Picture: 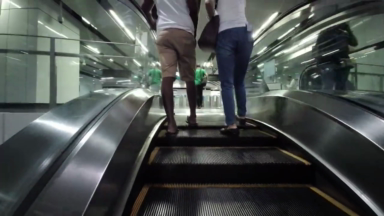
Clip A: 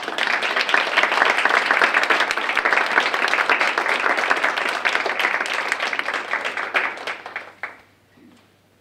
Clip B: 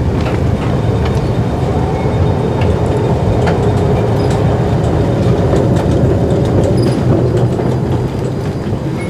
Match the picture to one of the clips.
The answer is B